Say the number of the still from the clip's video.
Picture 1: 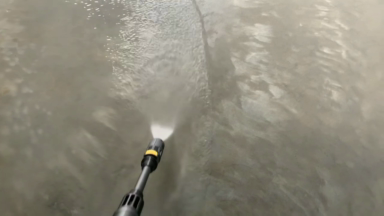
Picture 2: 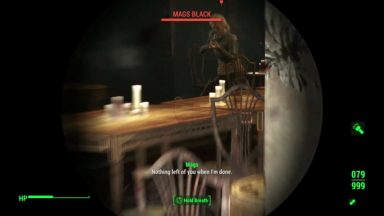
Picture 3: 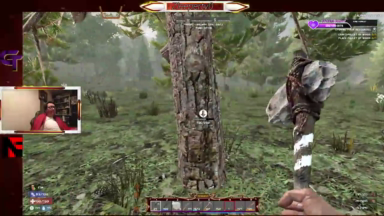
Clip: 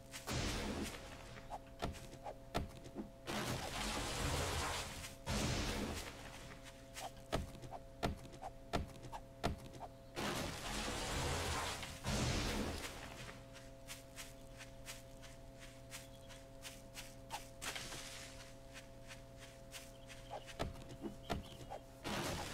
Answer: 3